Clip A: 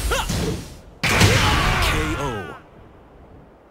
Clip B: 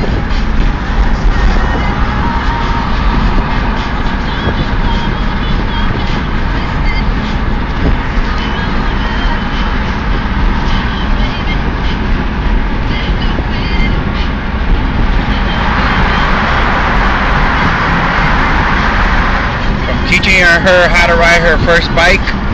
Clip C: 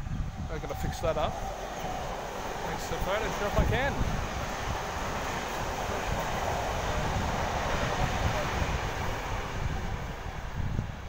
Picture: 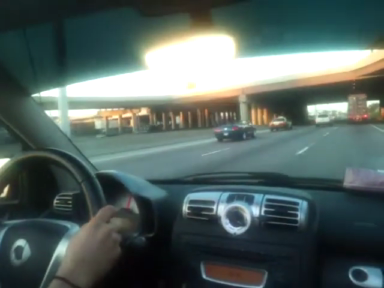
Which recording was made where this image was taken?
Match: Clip B